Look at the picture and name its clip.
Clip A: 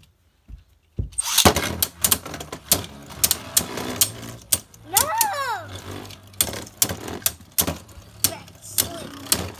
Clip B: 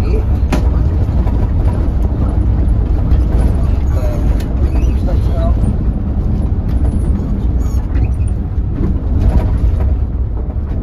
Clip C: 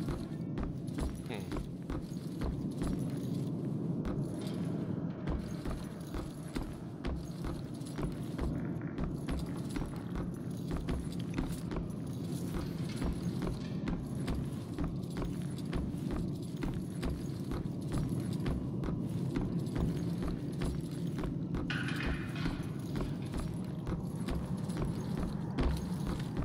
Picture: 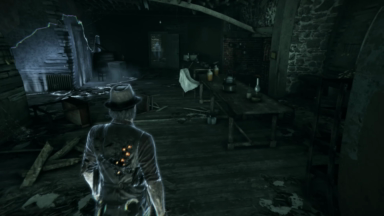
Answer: C